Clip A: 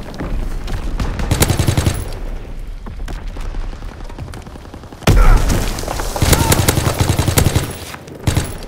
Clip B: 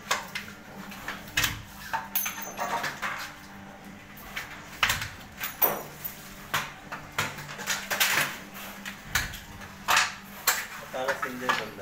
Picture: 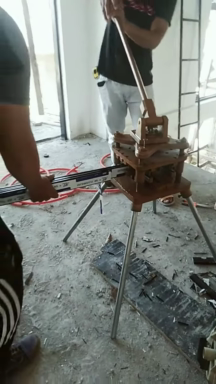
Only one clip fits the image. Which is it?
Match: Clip B